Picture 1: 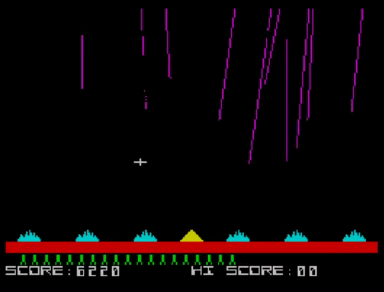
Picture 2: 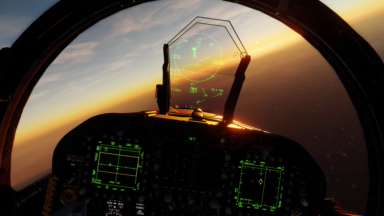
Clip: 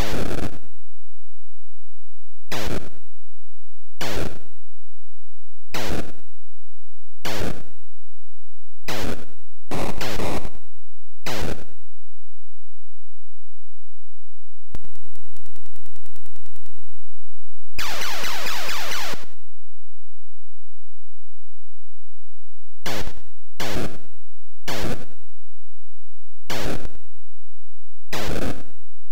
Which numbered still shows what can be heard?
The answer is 1